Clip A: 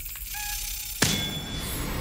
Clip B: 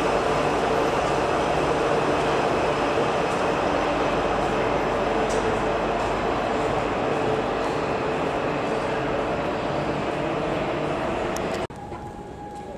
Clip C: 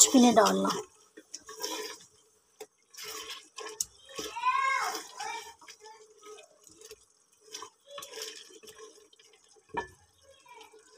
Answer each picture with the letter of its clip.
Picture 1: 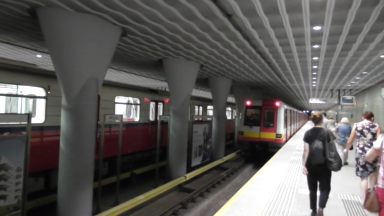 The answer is B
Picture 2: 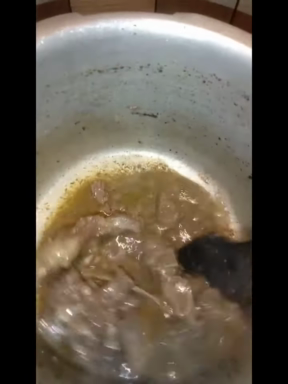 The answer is C